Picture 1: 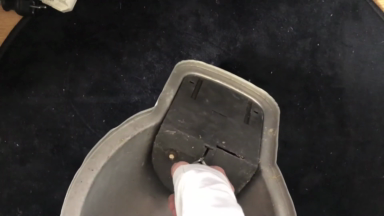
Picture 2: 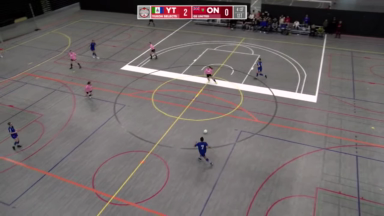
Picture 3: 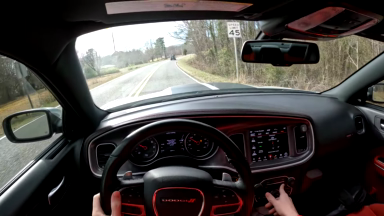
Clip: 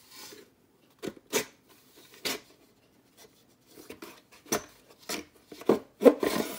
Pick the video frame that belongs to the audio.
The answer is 1